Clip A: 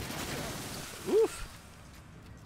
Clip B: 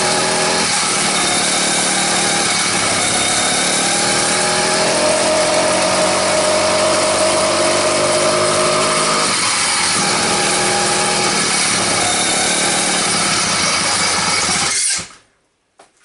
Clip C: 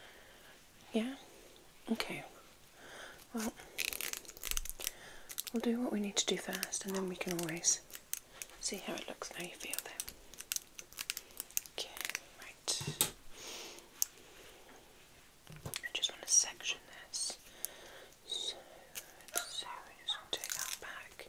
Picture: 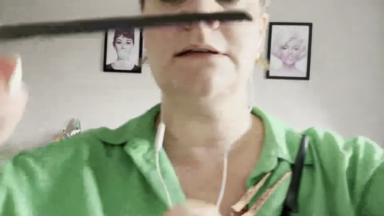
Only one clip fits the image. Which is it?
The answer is C